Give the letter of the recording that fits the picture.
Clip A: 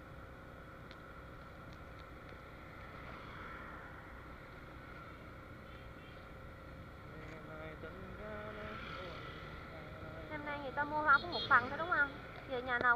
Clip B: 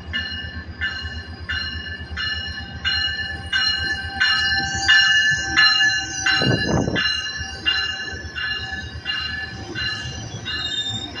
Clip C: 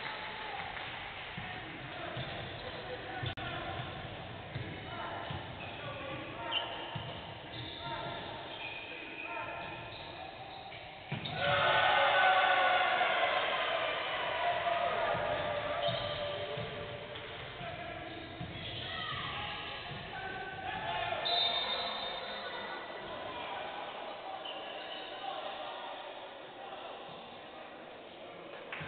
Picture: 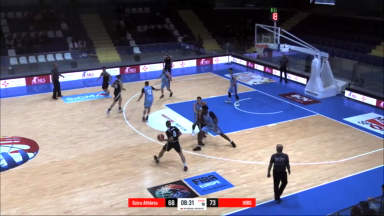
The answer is C